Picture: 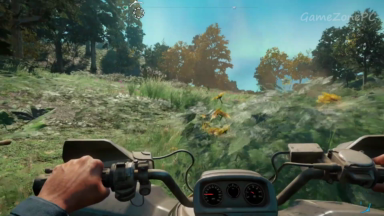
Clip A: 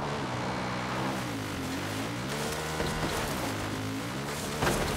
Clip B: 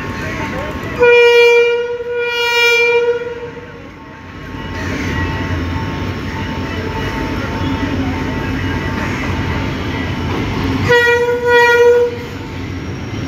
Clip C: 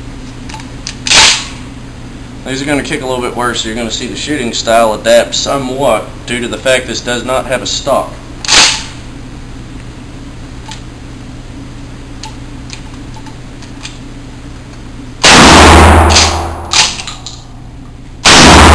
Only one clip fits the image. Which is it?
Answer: A